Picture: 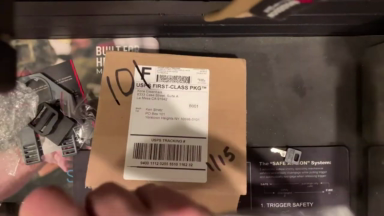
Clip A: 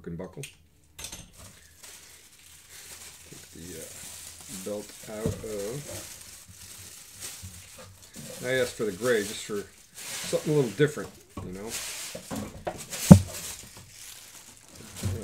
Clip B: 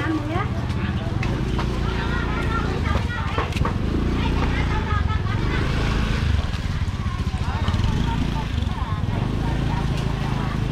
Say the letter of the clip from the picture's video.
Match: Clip A